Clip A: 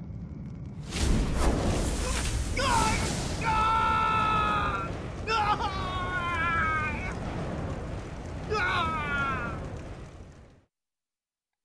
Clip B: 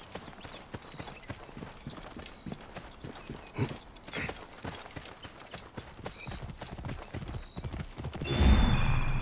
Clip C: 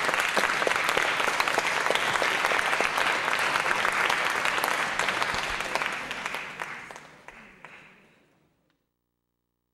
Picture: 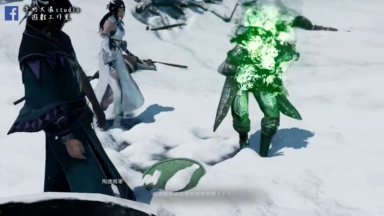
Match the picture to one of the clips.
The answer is A